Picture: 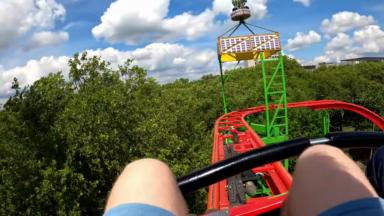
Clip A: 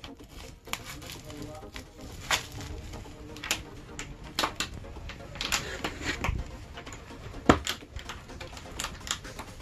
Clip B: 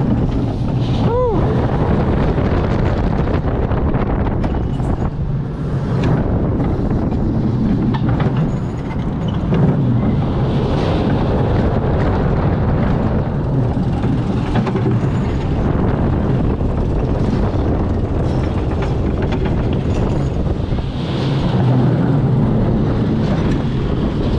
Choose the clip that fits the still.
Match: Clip B